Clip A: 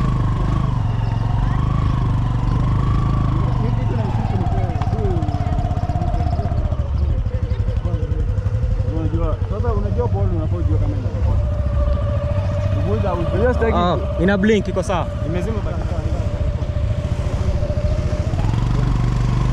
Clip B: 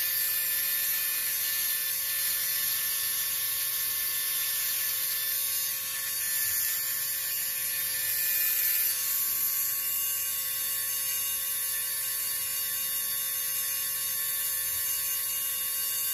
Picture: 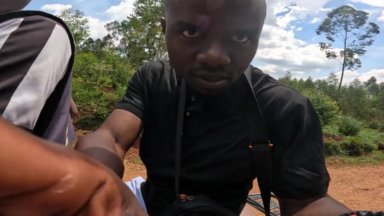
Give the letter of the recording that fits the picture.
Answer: A